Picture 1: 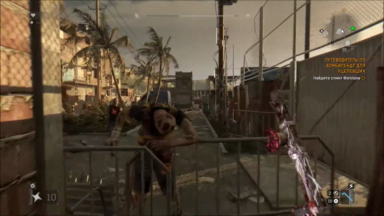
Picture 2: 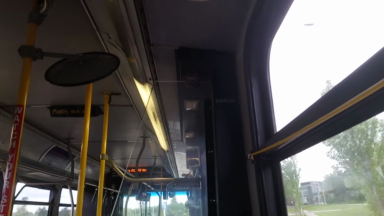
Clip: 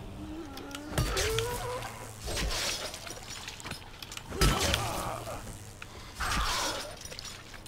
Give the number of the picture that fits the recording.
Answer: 1